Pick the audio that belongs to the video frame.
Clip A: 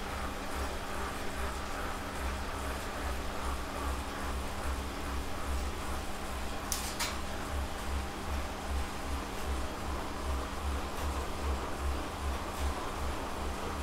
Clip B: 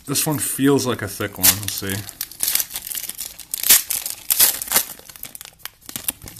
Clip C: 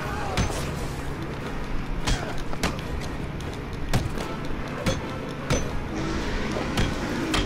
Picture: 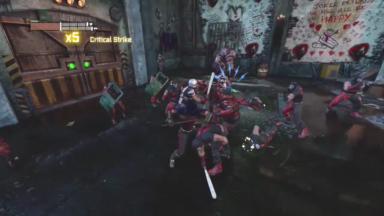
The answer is C